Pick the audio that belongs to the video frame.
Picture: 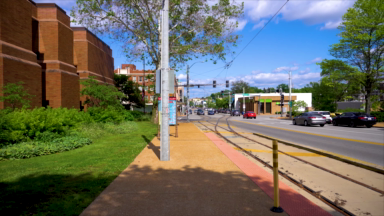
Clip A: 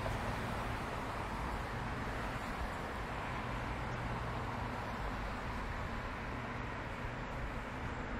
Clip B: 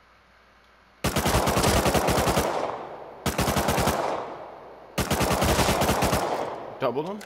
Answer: A